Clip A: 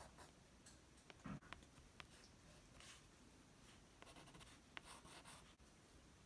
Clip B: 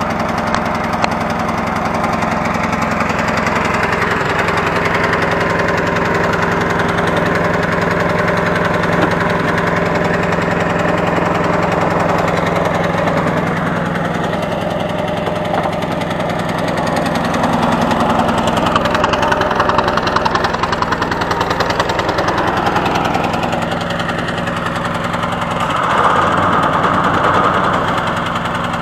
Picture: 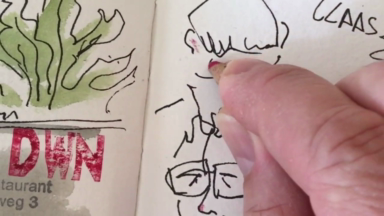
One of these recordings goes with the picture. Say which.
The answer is A